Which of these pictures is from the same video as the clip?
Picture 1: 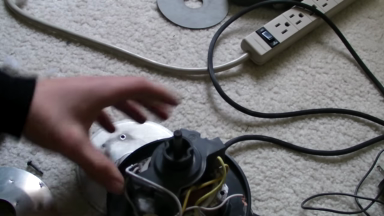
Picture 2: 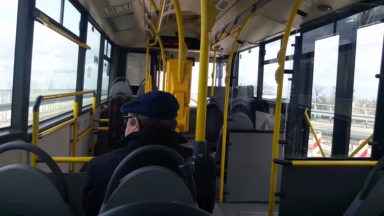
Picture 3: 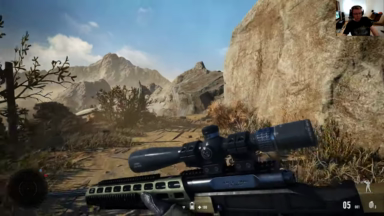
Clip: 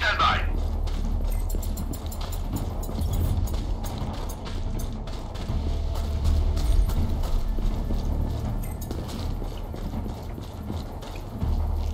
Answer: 3